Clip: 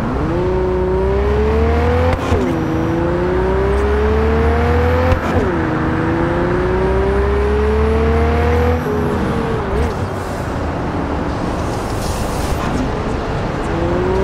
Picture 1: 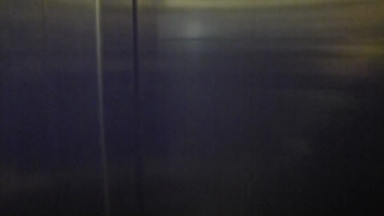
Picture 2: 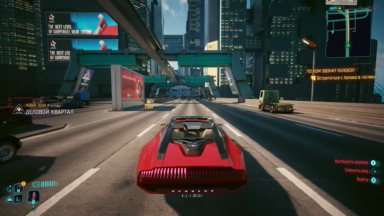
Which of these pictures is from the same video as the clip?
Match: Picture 2